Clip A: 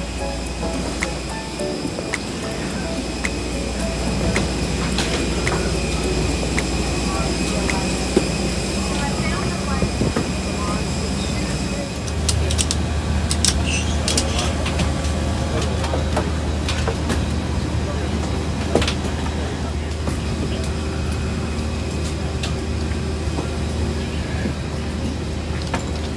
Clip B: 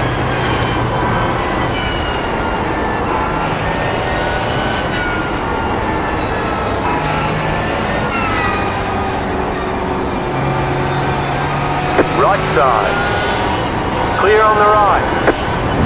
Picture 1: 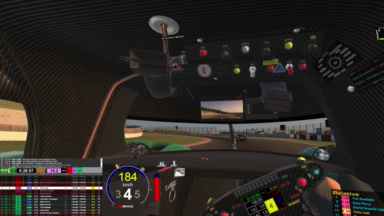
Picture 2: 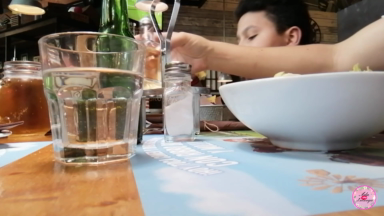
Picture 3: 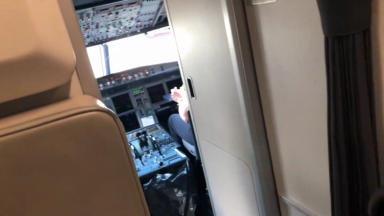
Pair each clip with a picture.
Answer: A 3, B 1